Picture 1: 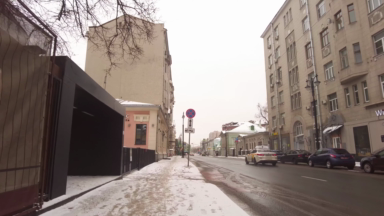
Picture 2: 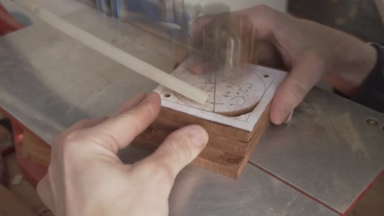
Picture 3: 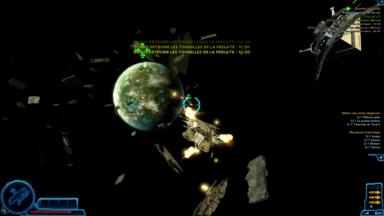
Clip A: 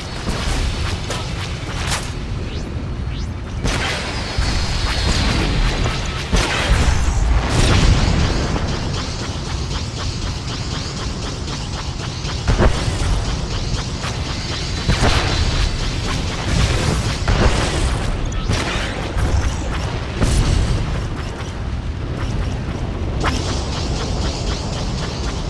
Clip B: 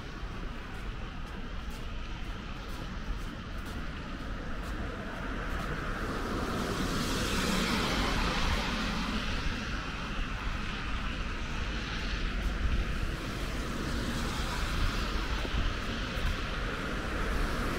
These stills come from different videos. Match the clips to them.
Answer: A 3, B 1